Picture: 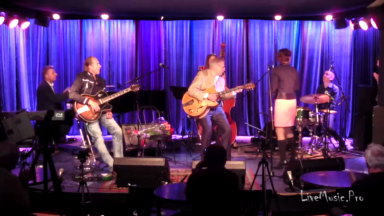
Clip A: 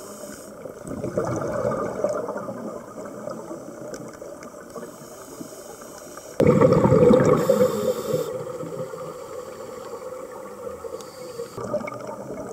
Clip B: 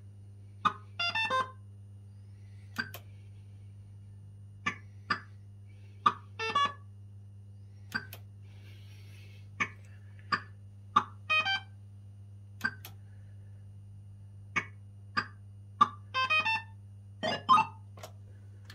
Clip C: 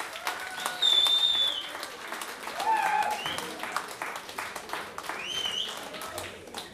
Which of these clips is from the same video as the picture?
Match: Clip C